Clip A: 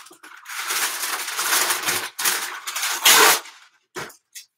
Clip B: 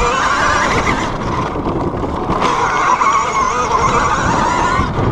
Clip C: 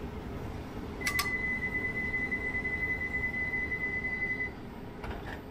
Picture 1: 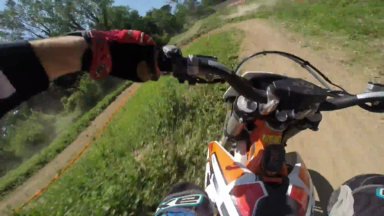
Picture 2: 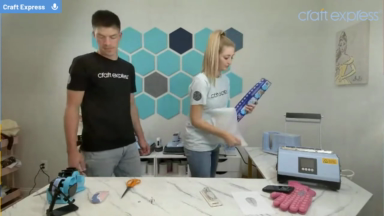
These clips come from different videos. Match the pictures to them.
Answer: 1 B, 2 A